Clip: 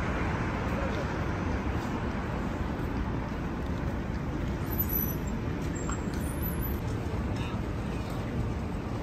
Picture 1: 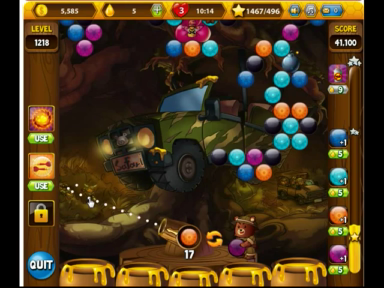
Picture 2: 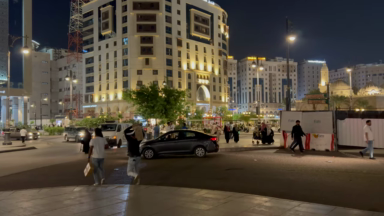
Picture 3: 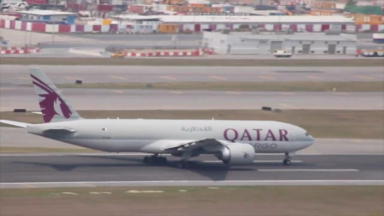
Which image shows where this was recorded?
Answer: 2